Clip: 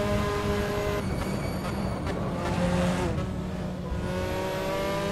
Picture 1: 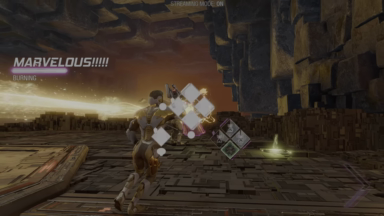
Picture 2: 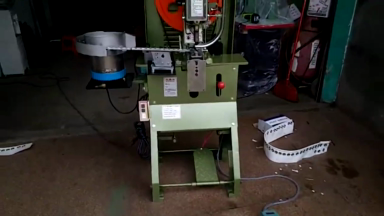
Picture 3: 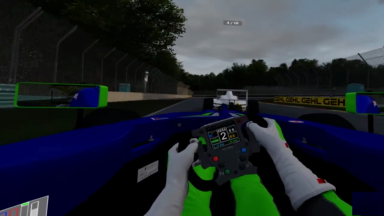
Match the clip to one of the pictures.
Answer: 3